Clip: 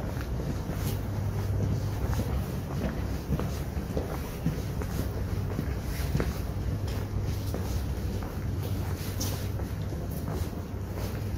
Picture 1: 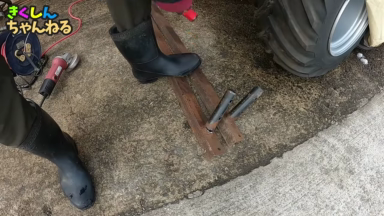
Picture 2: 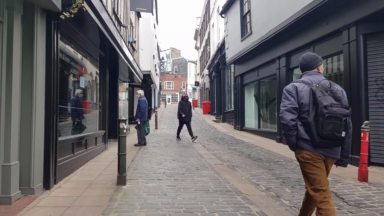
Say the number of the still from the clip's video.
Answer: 2